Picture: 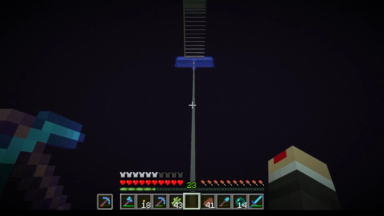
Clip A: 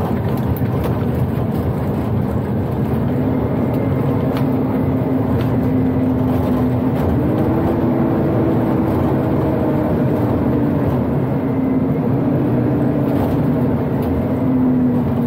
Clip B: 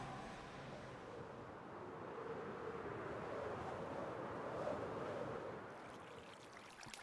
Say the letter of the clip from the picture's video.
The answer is B